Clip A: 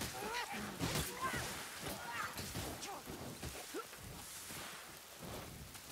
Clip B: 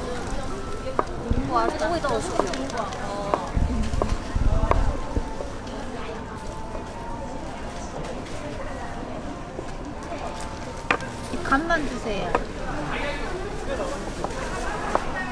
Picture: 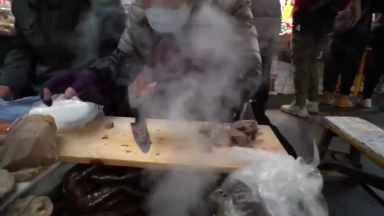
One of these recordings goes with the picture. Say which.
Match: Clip B